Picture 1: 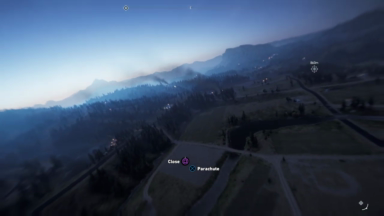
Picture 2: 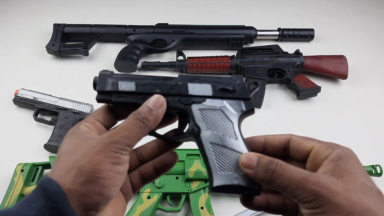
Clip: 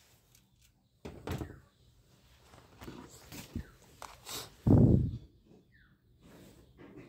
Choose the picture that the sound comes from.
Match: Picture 2